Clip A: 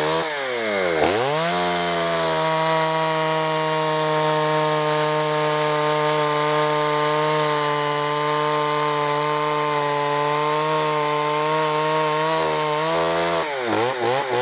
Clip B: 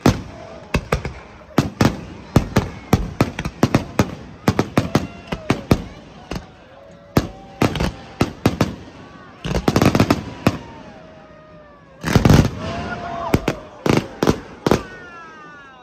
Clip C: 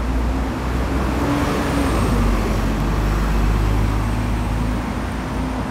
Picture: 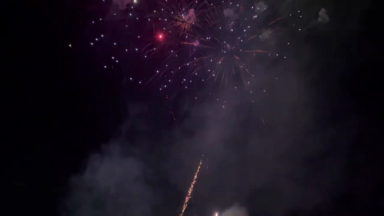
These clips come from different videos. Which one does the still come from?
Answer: B